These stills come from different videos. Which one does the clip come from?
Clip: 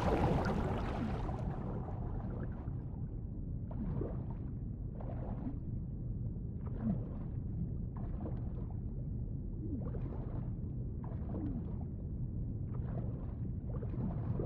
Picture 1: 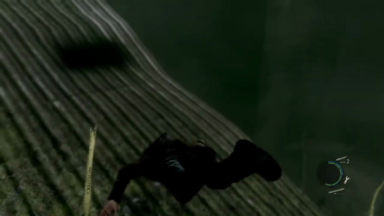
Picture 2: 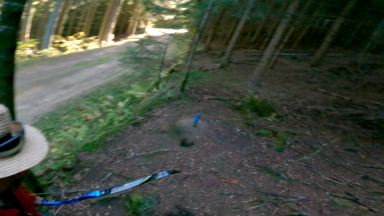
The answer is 1